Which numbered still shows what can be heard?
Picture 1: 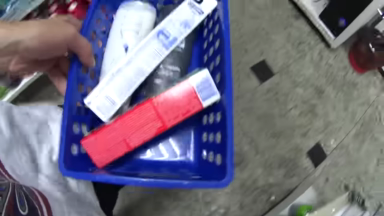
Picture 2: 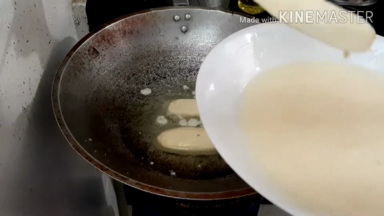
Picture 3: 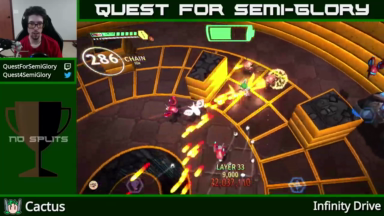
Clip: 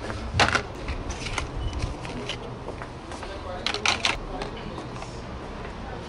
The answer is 1